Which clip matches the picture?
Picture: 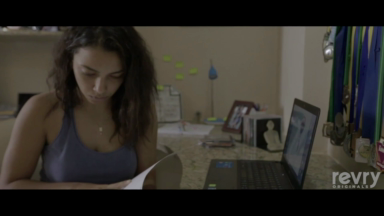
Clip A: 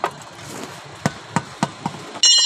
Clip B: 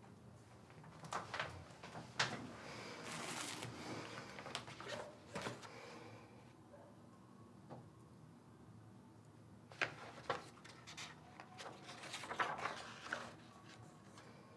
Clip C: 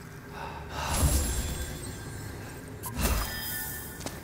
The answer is B